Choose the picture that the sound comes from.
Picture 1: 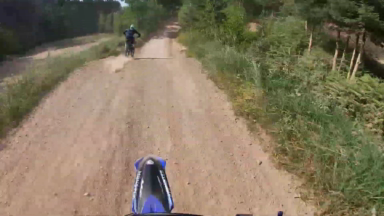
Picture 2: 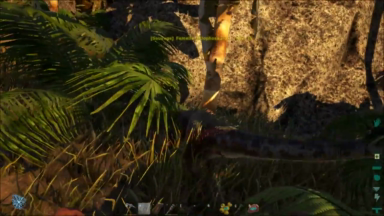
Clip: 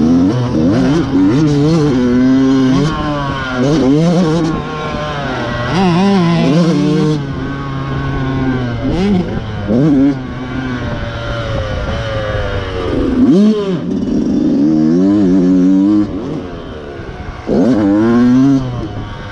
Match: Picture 1